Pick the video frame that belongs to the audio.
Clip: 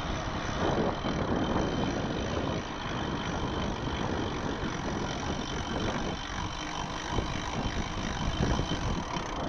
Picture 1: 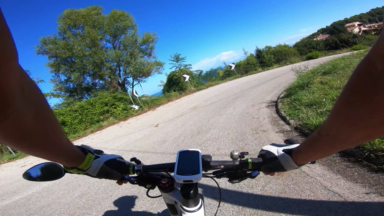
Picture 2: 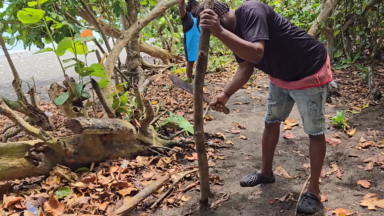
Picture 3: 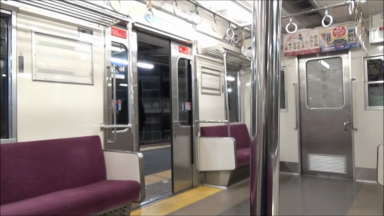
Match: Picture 1